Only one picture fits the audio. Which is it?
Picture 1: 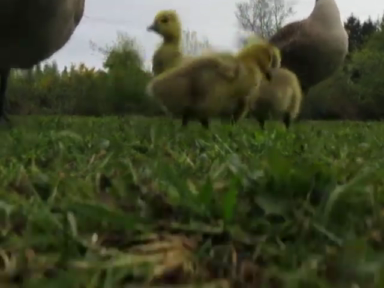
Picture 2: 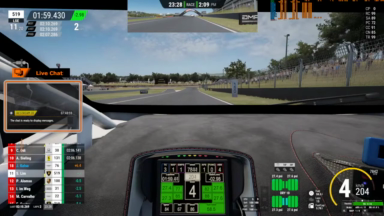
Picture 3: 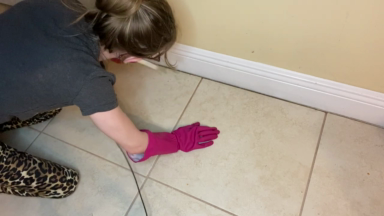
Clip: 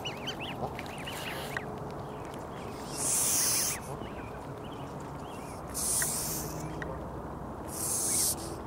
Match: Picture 1